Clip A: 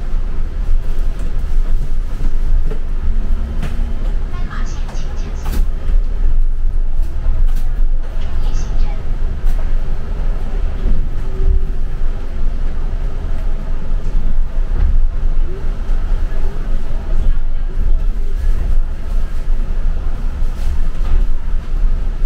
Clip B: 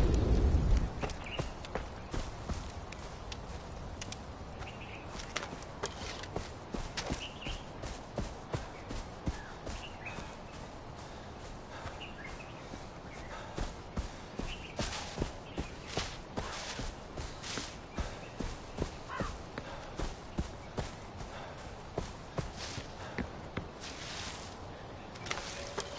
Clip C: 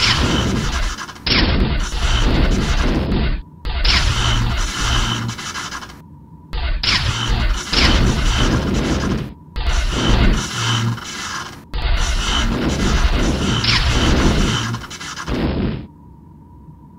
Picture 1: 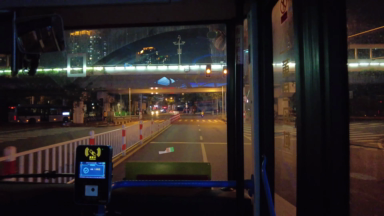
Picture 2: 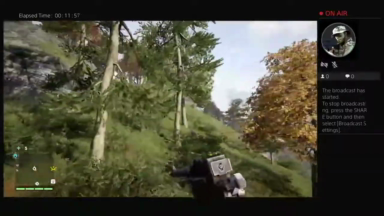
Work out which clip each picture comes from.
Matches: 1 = A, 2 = B